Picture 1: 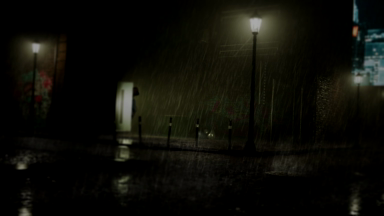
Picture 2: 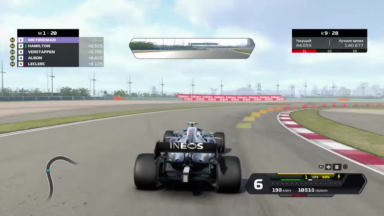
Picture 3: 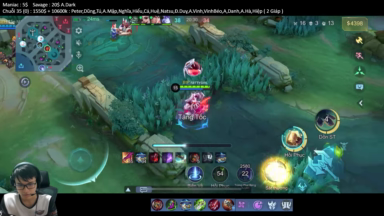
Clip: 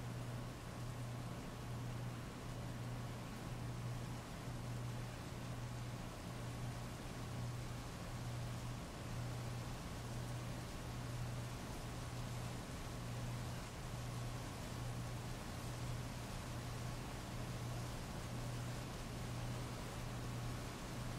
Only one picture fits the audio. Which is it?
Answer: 1